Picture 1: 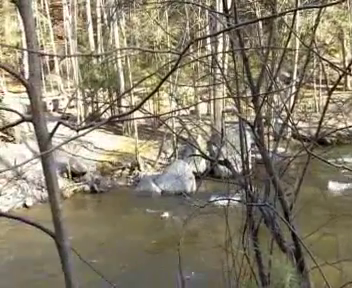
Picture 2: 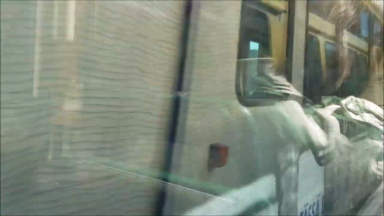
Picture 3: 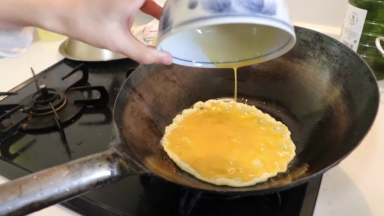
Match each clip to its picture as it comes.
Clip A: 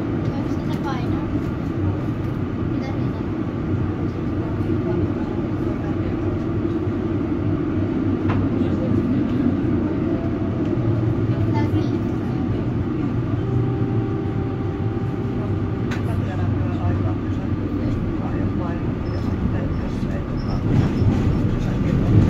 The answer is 2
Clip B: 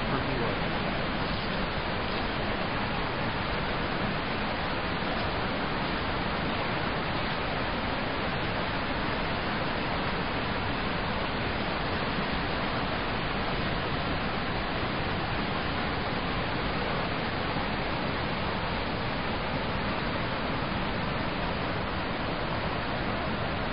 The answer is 1